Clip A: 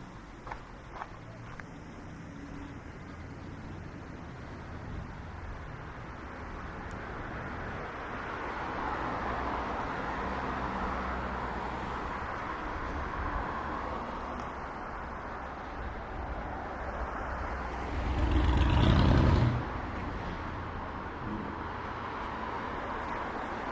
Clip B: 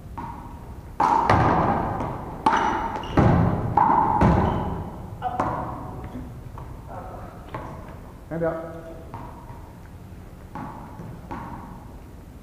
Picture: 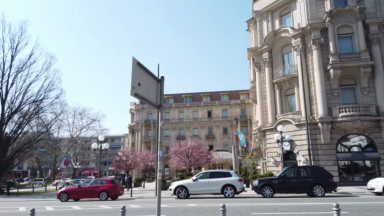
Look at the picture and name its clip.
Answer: A